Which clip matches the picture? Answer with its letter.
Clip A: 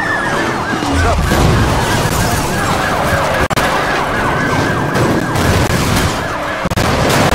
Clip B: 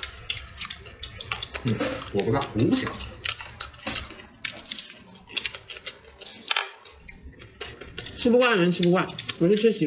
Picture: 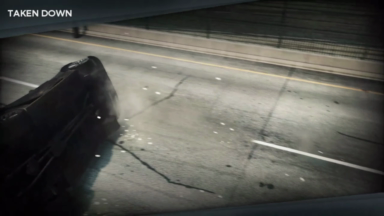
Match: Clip A